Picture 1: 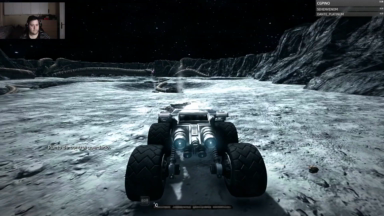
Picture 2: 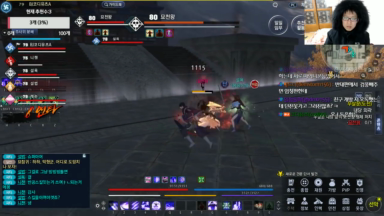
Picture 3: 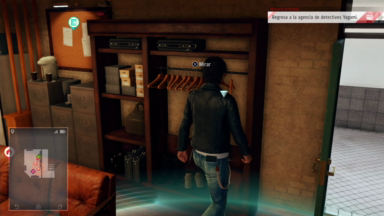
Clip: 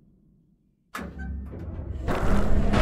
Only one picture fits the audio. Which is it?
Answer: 1